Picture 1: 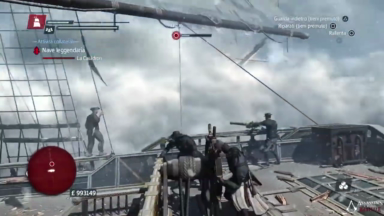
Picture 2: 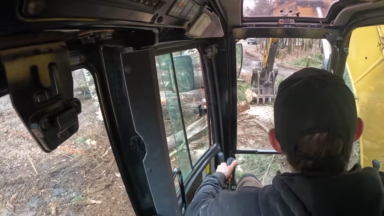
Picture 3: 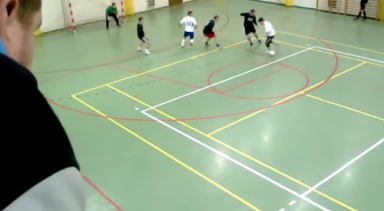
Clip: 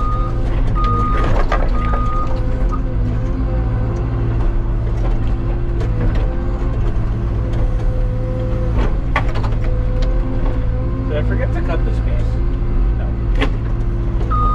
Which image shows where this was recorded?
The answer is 2